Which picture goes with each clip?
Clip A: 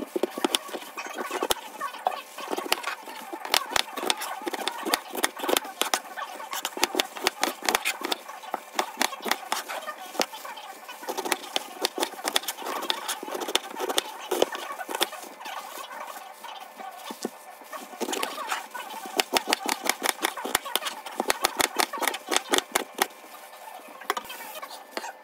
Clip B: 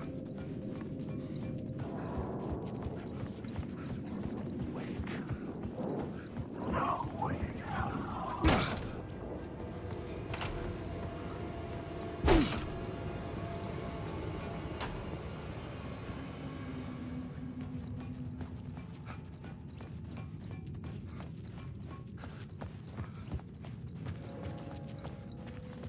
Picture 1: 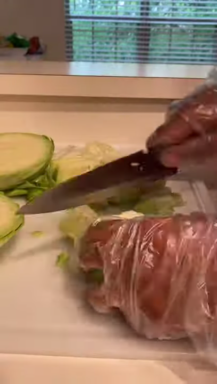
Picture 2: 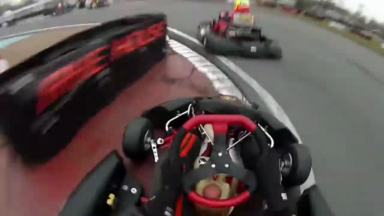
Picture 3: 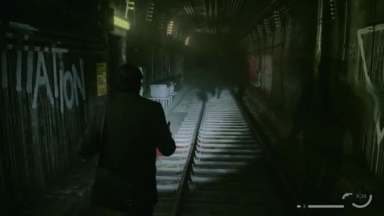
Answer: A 1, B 3